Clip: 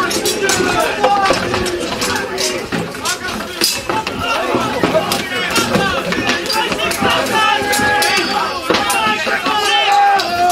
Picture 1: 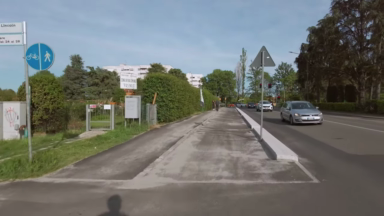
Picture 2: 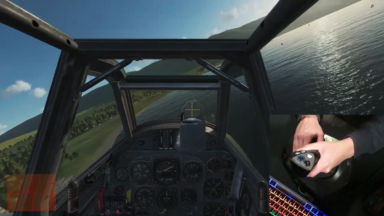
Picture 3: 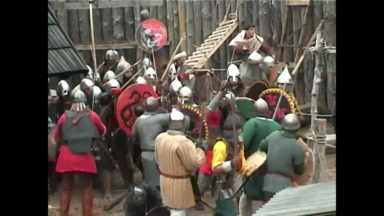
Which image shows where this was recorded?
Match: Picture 3